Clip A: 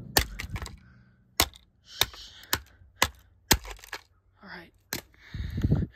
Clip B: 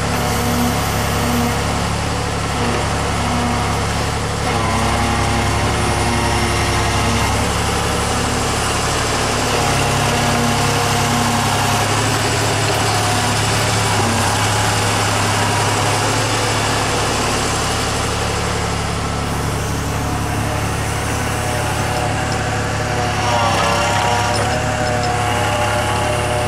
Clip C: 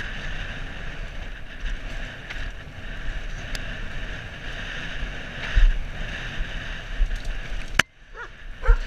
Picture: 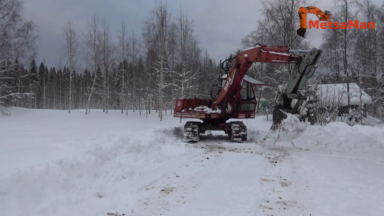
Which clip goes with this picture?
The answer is B